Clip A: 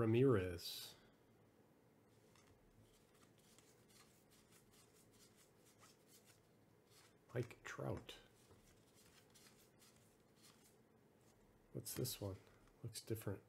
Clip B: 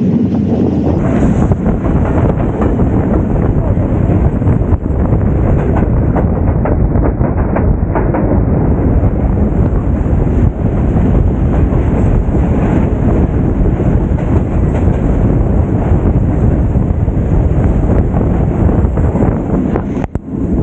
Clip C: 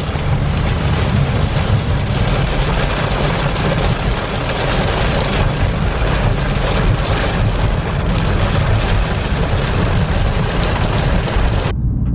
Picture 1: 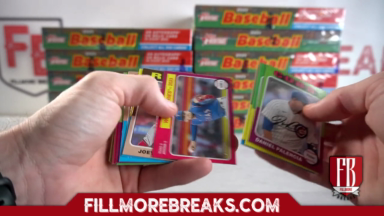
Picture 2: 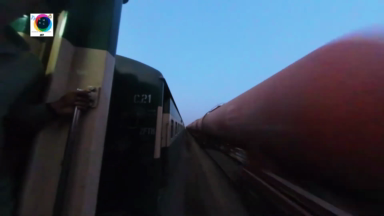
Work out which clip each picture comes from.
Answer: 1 A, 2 B